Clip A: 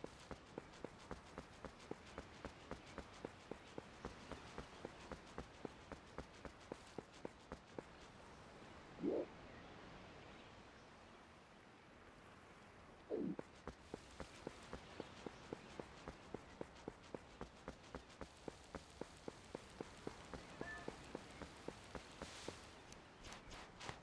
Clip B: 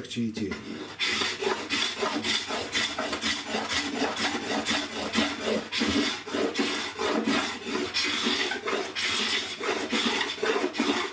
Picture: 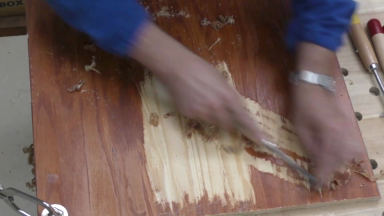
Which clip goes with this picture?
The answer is B